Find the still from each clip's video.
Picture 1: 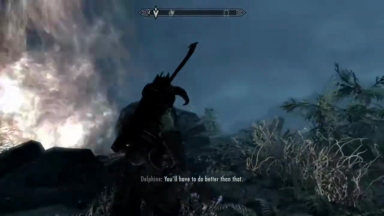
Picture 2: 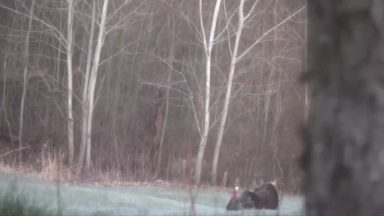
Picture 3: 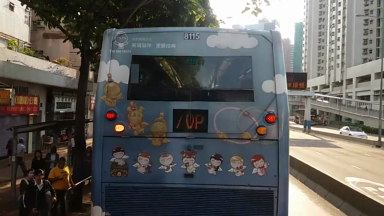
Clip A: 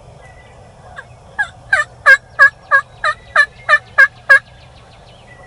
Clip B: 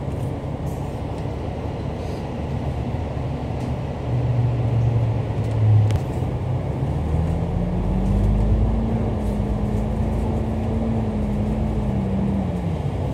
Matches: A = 2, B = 3